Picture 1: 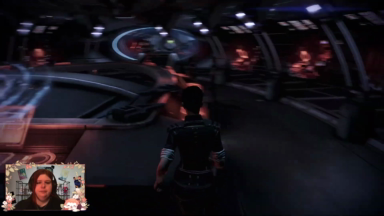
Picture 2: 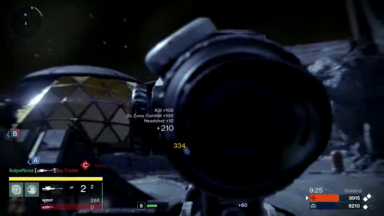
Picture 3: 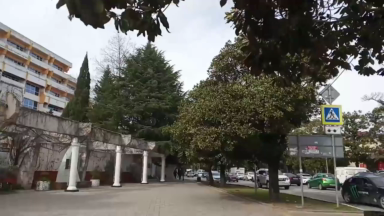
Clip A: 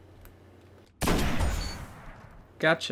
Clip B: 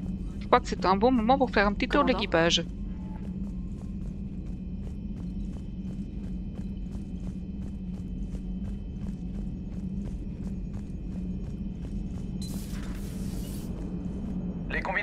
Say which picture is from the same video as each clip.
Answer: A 2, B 1